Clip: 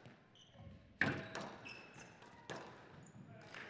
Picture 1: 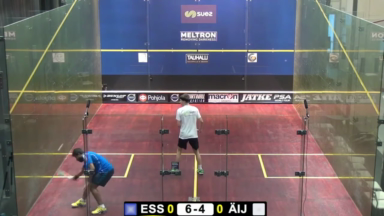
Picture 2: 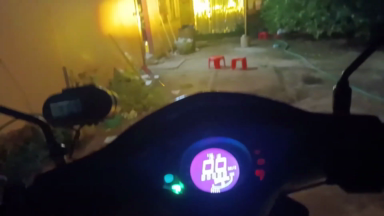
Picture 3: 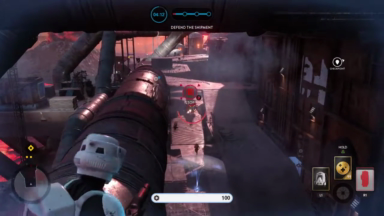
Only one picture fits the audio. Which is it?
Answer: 1